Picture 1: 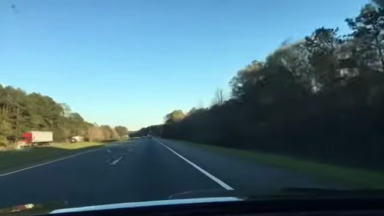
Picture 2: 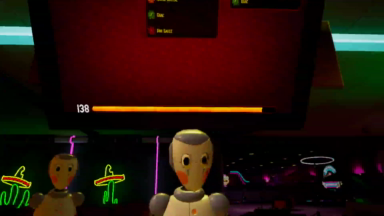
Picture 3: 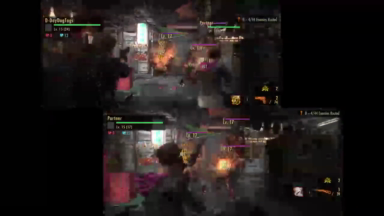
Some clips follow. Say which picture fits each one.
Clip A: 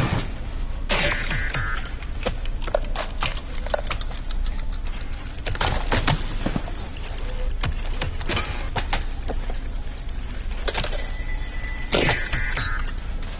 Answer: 2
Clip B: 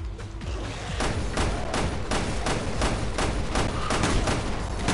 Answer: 3